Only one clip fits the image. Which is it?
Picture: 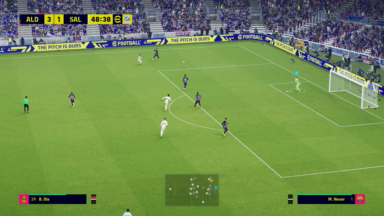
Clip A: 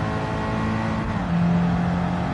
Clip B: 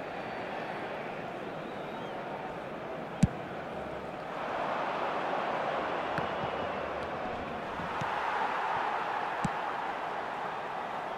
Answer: B